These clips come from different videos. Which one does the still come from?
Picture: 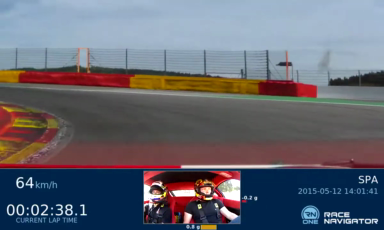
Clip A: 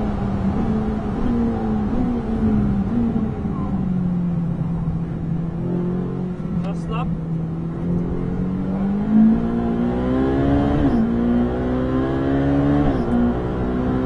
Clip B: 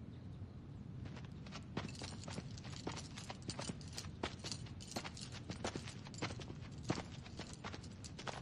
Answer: A